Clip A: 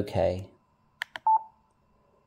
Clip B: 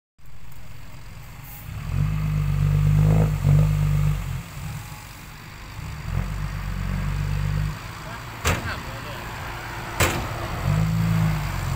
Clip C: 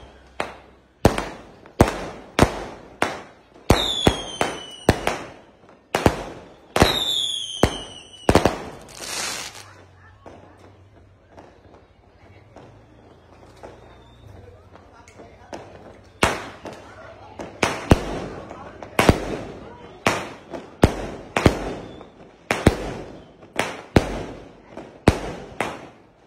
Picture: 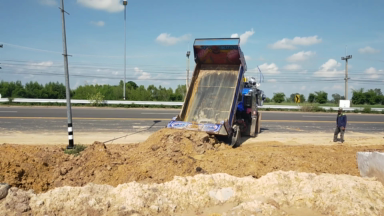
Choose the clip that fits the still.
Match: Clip B